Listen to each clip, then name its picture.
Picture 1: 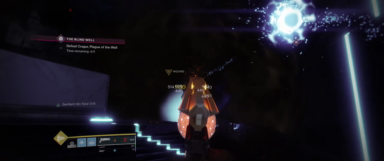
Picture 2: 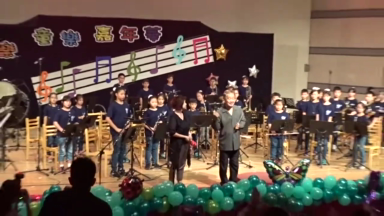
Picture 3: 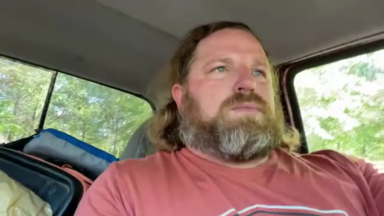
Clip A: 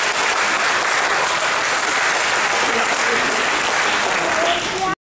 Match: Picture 2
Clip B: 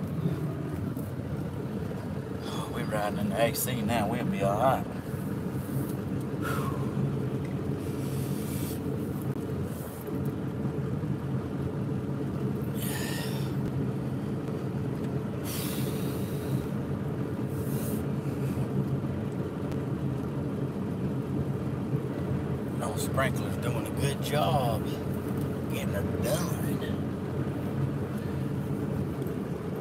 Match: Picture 3